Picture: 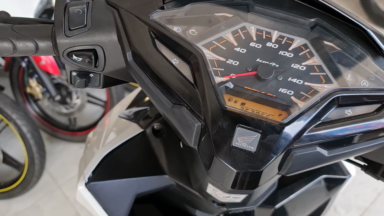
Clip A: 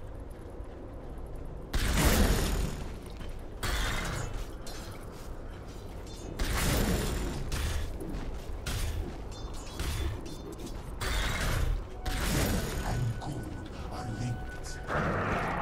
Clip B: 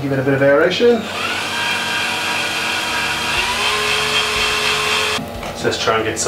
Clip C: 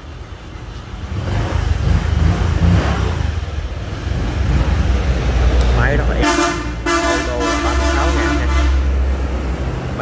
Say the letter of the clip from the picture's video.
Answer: C